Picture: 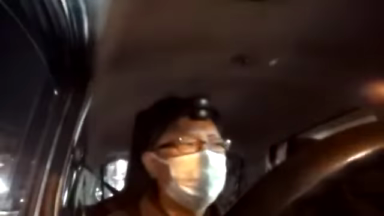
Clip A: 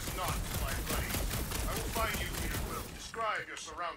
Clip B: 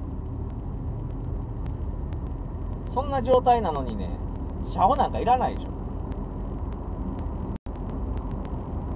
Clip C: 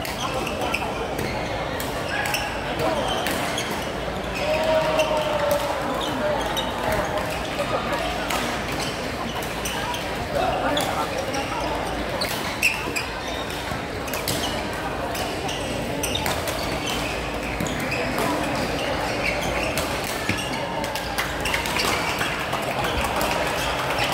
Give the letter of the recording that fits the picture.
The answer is B